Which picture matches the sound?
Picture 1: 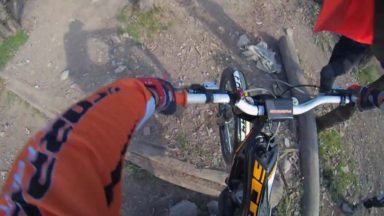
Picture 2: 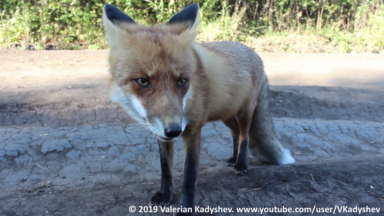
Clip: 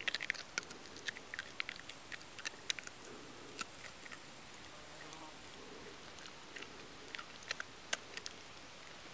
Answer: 2